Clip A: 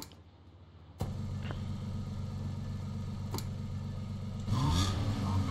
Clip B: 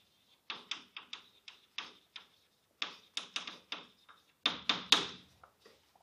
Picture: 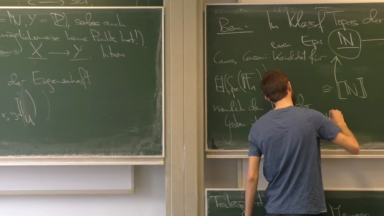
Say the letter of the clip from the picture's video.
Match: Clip B